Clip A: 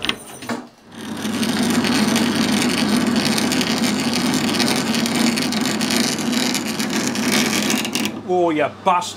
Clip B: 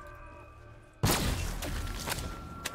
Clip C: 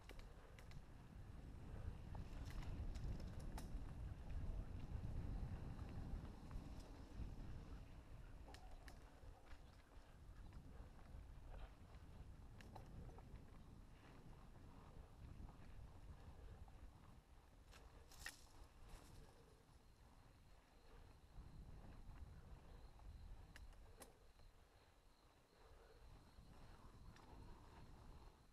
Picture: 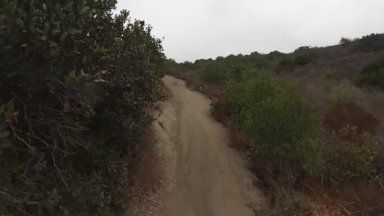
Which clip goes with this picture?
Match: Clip C